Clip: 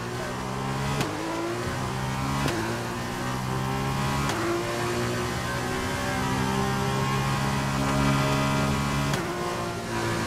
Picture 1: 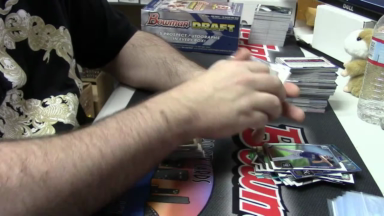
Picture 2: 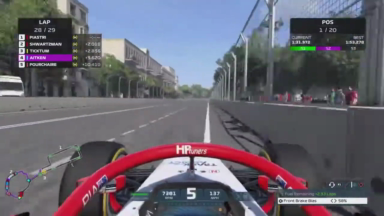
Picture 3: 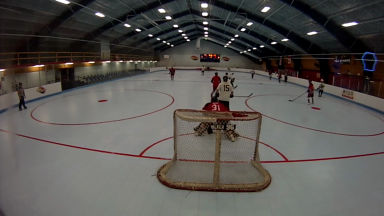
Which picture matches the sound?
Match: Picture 2